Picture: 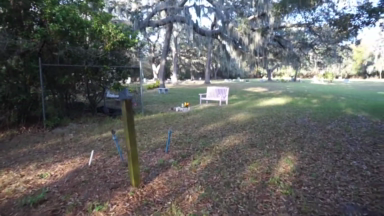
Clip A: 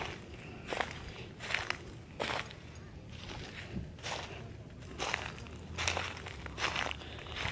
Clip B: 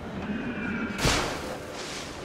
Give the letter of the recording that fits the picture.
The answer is A